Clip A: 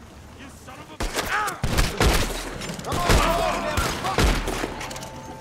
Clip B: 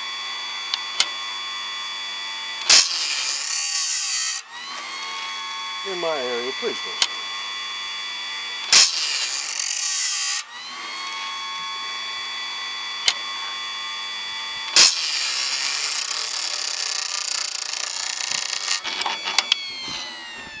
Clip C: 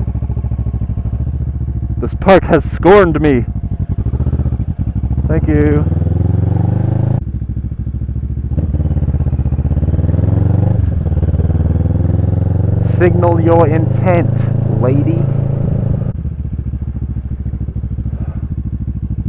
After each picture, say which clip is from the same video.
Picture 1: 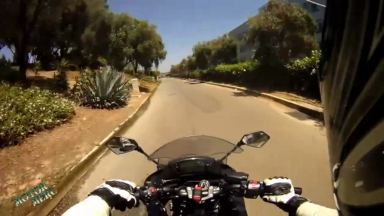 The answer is C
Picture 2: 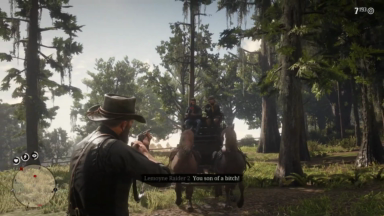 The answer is A